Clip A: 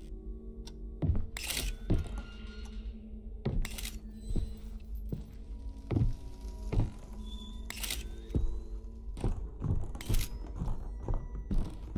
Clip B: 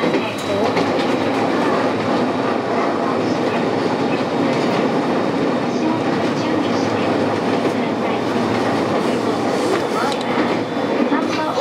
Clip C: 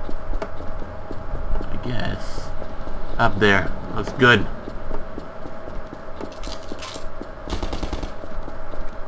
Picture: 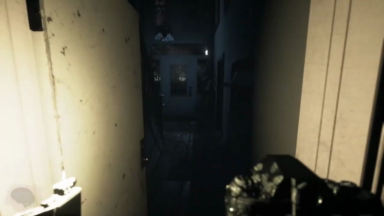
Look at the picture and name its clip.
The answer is A